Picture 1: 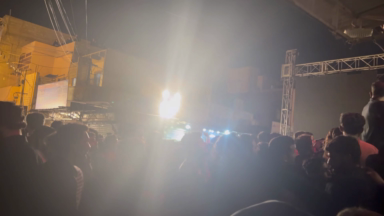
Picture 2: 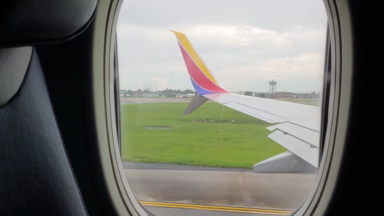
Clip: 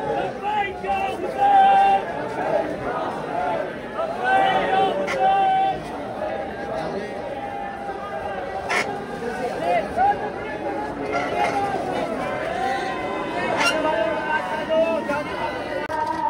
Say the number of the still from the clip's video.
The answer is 1